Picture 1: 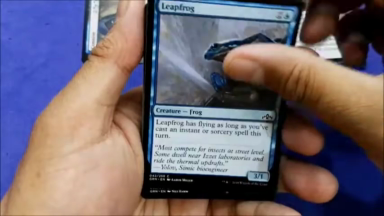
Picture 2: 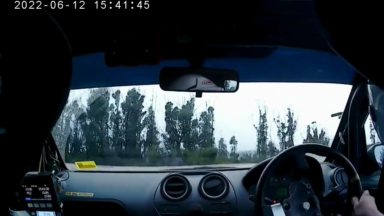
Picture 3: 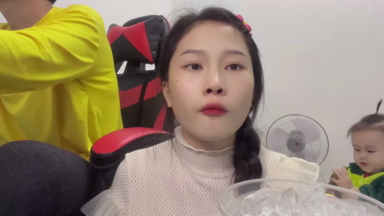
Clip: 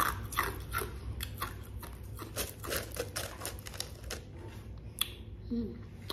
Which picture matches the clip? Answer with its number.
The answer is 3